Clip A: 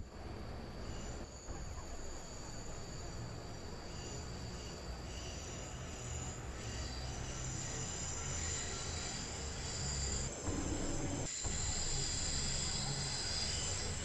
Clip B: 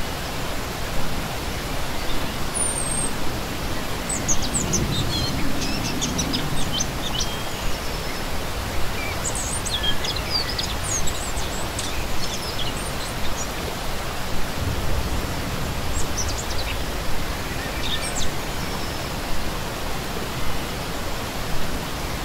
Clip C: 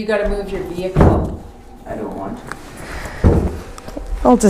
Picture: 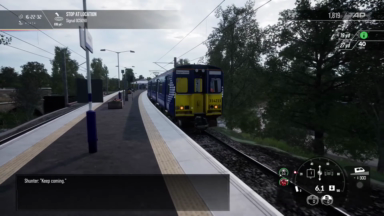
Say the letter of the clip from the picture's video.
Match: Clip A